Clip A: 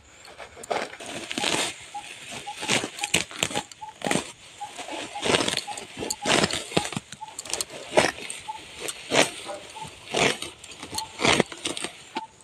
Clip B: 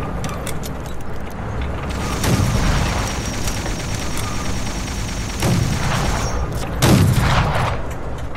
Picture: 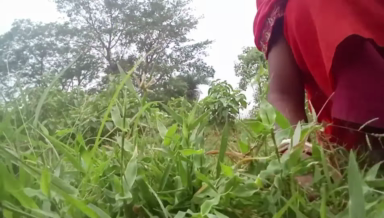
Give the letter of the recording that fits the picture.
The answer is A